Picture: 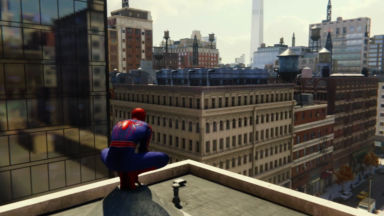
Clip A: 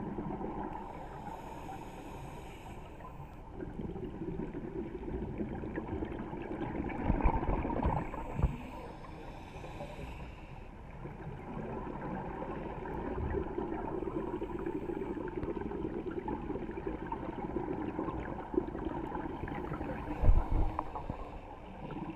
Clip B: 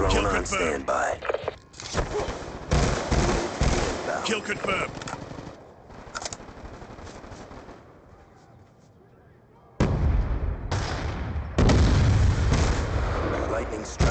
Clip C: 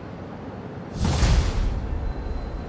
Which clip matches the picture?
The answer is C